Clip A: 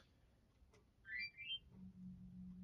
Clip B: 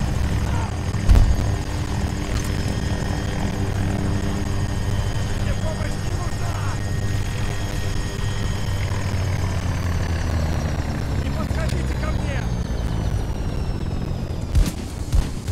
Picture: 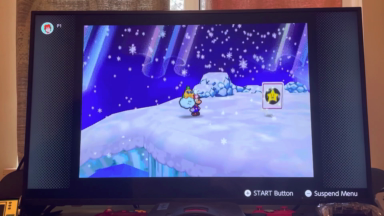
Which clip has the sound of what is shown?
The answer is A